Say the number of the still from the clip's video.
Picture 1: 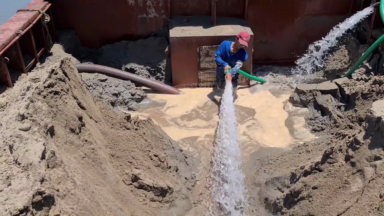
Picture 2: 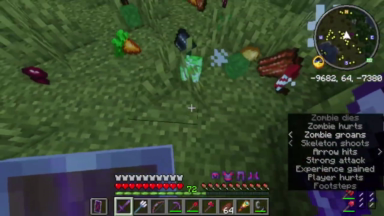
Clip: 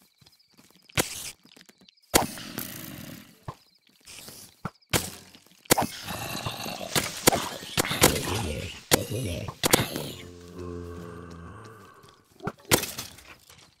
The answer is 2